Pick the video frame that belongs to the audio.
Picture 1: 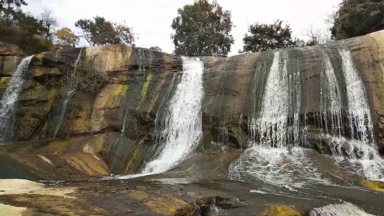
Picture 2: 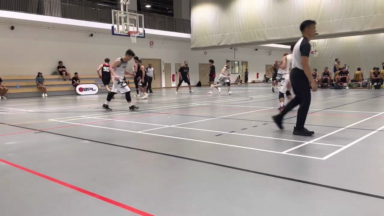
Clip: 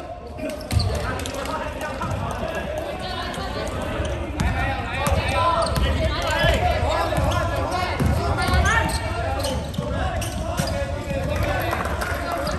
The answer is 2